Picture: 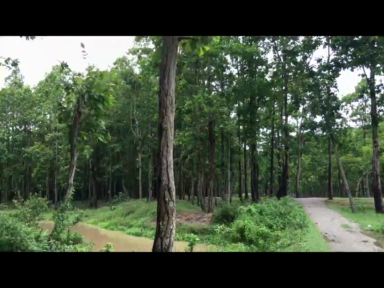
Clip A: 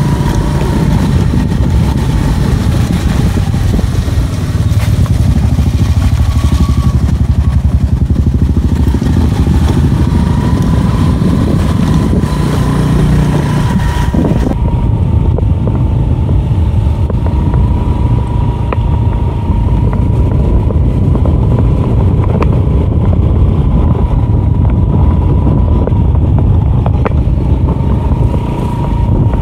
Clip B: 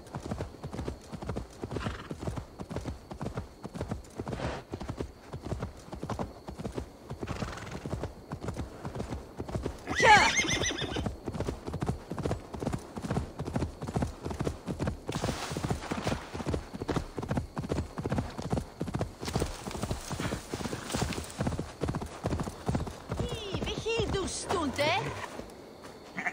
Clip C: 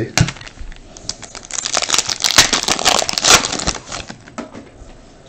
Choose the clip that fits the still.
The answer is A